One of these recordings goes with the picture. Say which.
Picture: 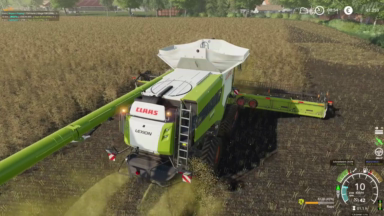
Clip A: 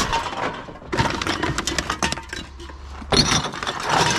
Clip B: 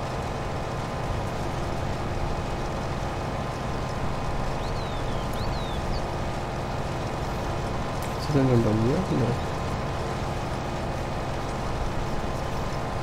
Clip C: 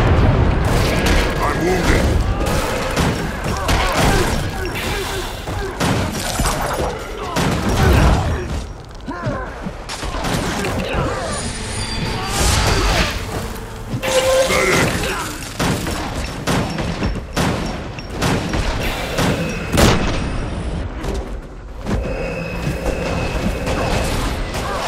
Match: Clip B